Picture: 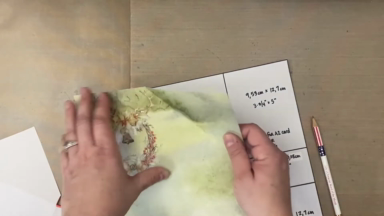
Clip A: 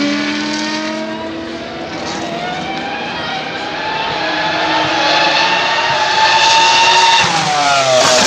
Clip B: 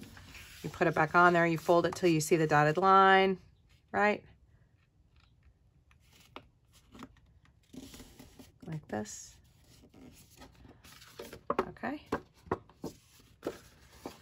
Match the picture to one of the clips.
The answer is B